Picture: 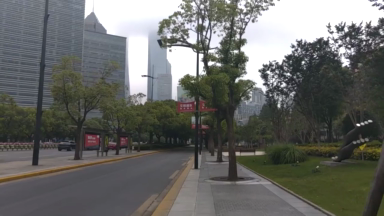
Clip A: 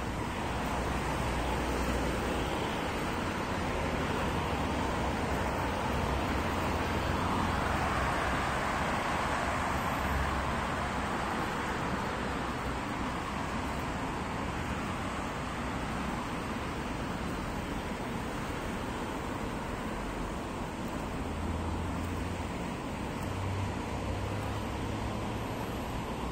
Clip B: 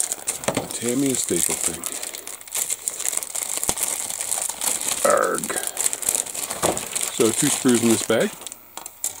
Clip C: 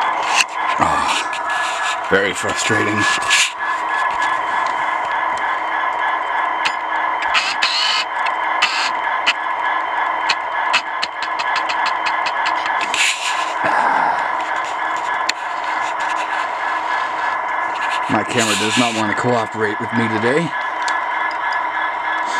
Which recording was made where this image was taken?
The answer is A